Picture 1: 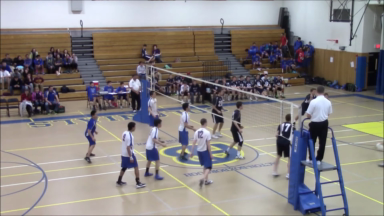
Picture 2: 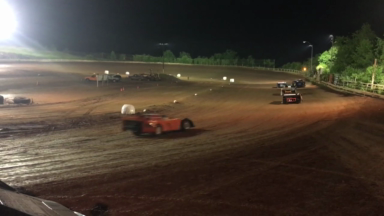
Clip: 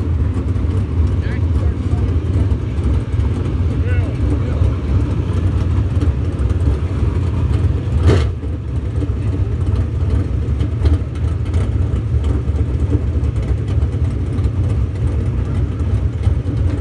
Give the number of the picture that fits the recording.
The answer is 2